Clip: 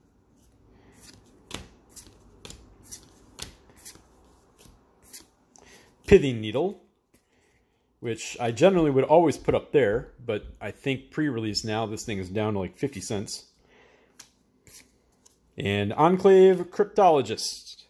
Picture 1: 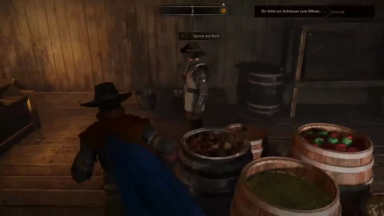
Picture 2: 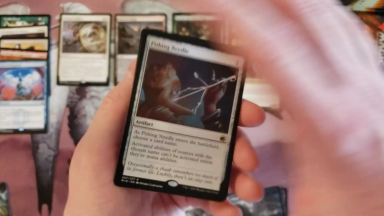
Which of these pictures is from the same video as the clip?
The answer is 2